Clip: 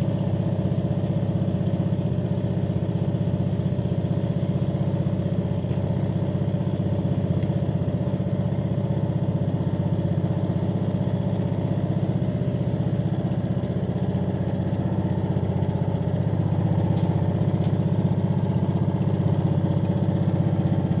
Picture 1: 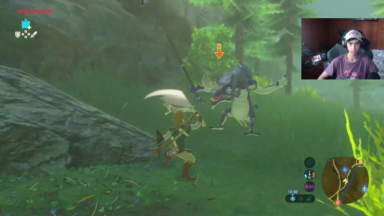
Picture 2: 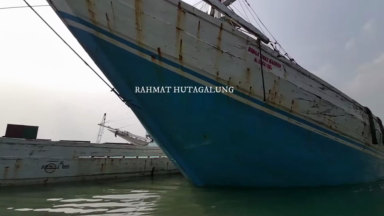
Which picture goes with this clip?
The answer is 2